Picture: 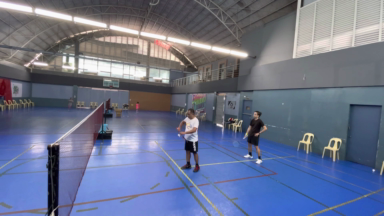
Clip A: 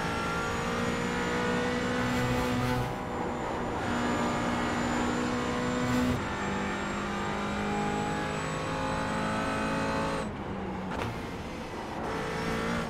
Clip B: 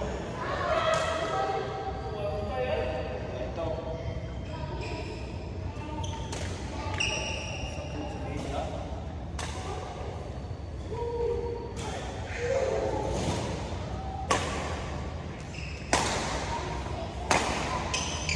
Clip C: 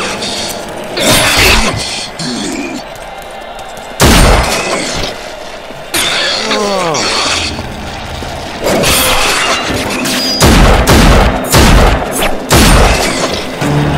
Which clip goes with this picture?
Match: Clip B